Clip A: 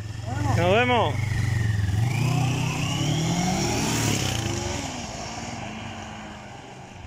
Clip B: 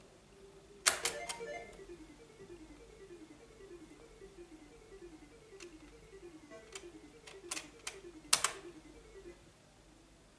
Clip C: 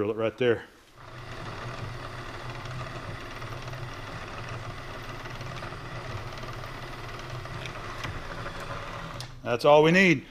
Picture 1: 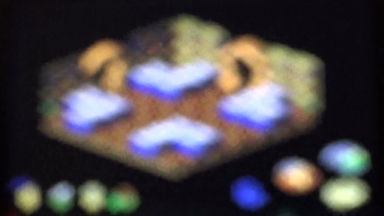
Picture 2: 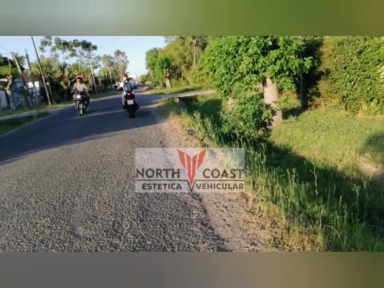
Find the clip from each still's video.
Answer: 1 B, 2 A